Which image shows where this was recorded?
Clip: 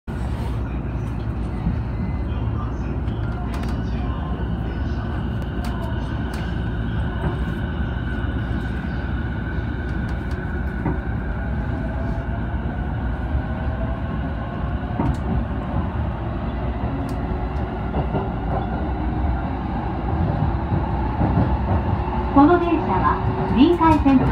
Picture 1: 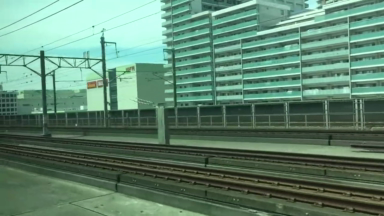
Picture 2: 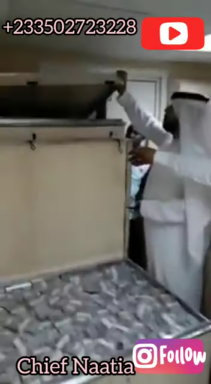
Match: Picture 1